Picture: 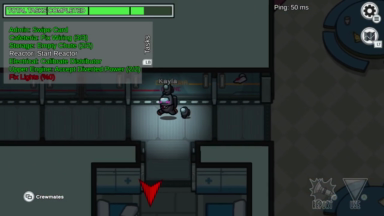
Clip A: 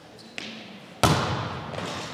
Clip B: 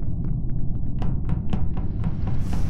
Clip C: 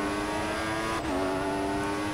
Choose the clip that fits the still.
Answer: B